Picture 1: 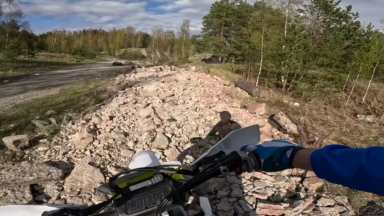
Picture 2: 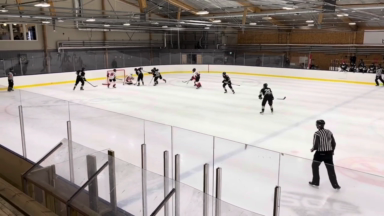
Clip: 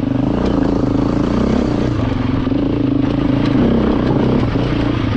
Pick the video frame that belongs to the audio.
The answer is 1